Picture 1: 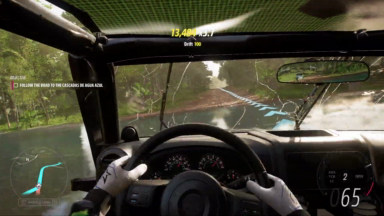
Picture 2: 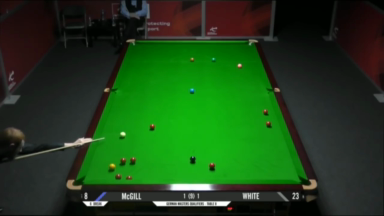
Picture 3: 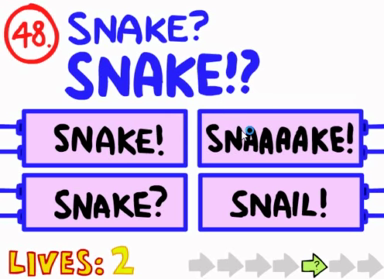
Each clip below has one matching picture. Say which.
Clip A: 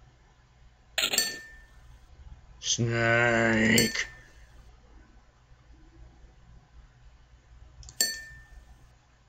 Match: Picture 3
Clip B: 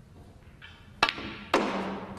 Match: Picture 2